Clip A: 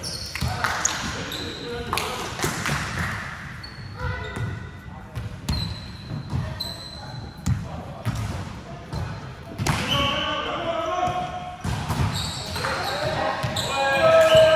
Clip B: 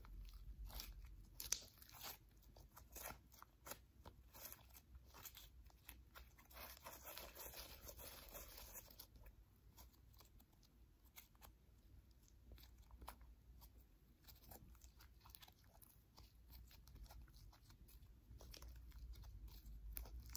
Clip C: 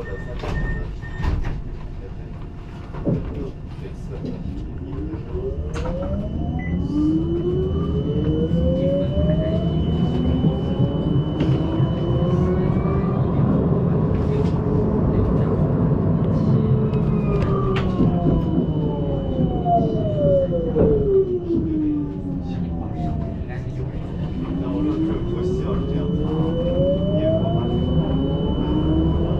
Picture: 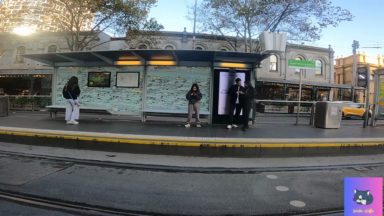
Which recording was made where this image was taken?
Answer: C